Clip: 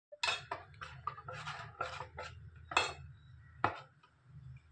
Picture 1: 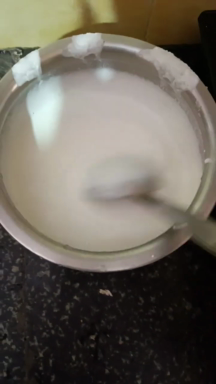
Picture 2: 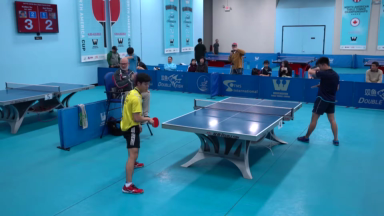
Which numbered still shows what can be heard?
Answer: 1